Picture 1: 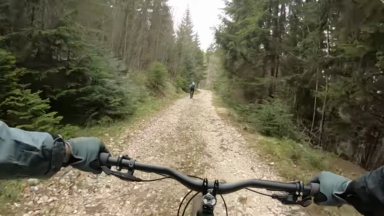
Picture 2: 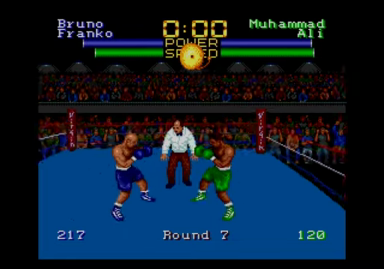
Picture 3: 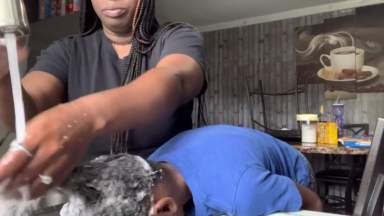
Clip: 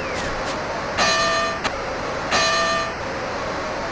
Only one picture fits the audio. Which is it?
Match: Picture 2